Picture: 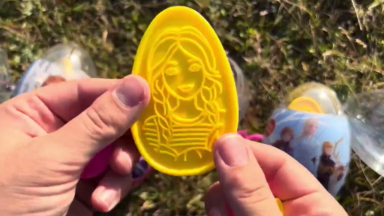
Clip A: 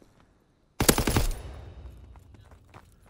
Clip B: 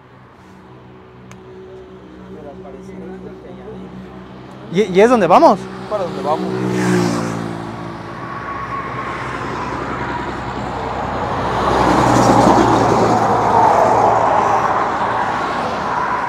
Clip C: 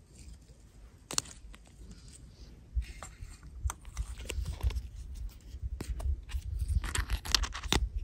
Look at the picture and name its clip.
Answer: C